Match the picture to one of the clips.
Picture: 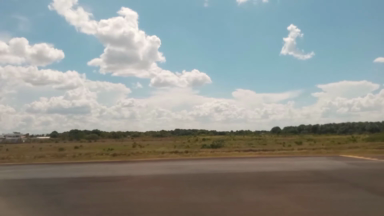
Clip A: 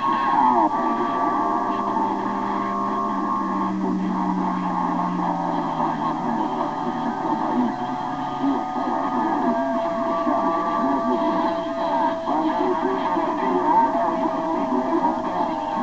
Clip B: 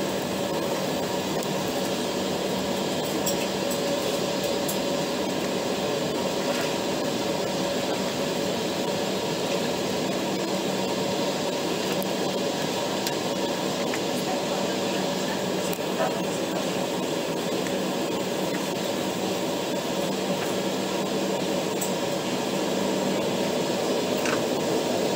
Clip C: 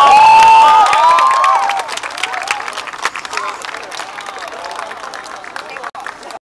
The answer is B